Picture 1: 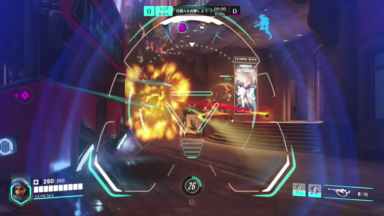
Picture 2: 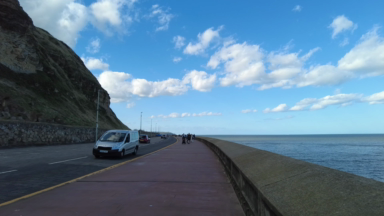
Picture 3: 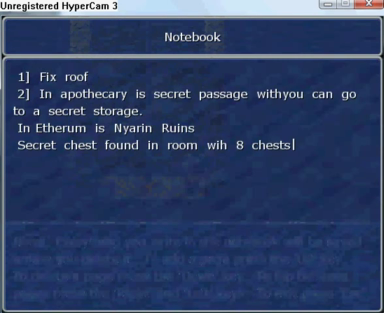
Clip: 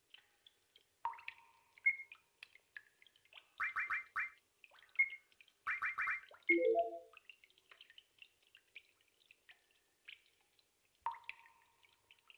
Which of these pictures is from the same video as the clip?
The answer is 3